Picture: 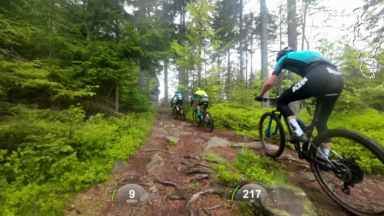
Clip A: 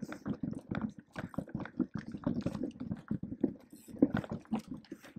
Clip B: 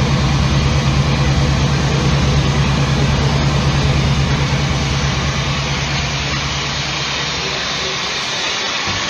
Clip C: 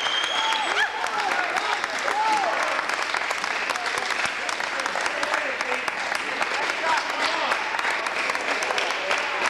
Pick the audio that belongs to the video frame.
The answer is A